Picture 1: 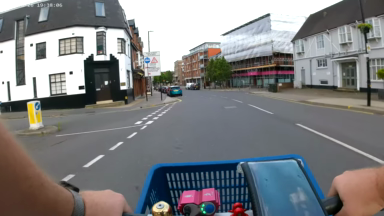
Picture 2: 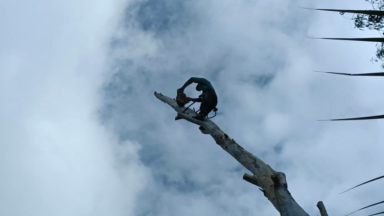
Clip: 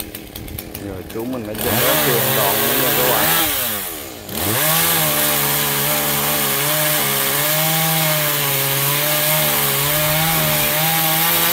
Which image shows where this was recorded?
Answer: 2